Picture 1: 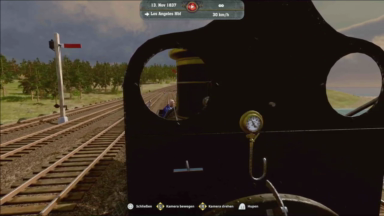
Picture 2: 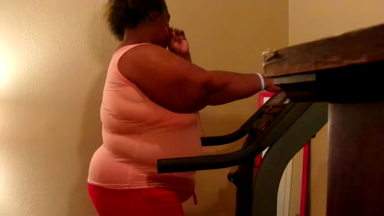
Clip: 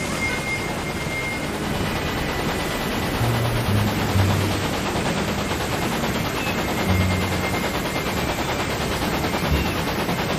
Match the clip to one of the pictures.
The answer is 1